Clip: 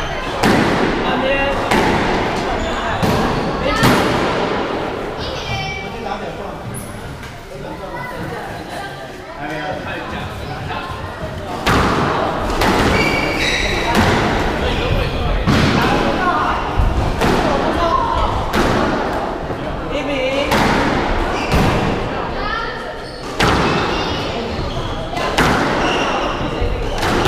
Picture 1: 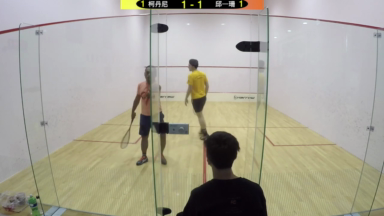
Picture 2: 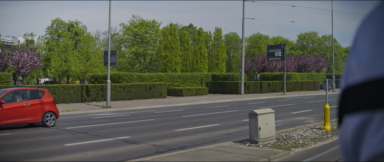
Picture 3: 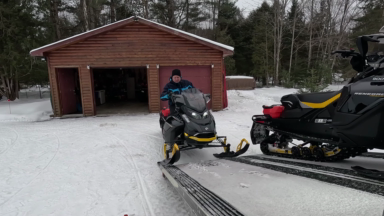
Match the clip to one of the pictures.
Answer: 1